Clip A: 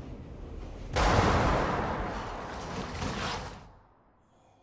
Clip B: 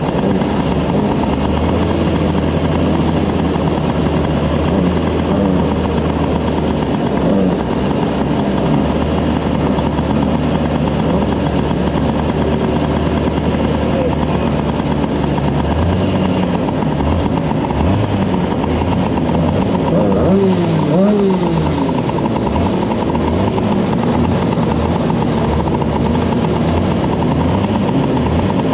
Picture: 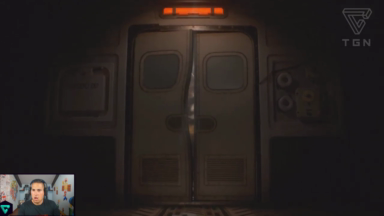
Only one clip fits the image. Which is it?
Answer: A